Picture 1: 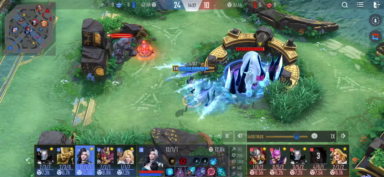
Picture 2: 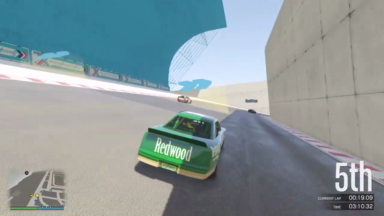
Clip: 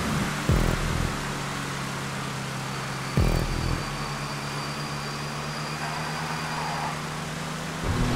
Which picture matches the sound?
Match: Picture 2